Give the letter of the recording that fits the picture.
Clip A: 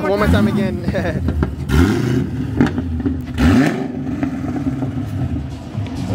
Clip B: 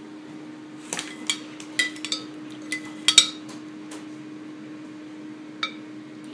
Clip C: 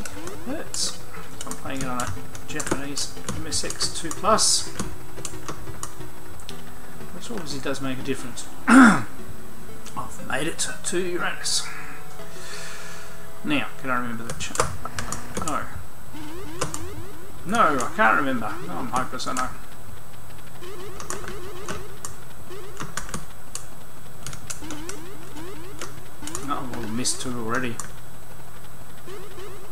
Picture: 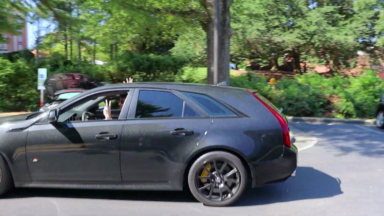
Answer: A